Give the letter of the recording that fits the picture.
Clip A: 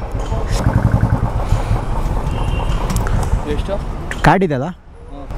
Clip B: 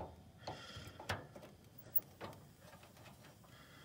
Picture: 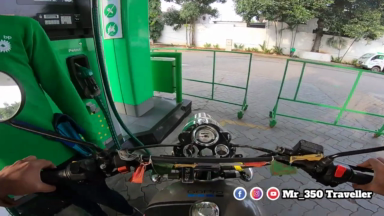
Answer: A